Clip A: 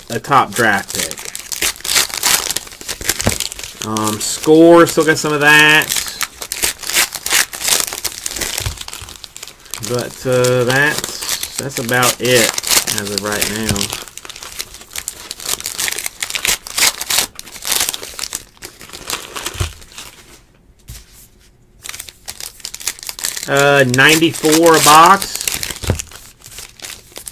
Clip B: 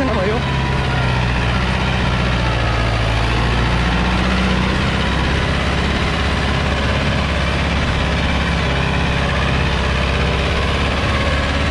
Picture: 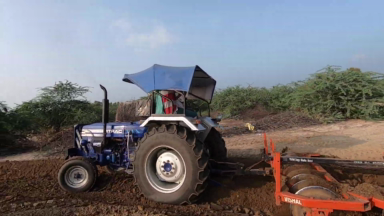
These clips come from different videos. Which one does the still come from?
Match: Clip B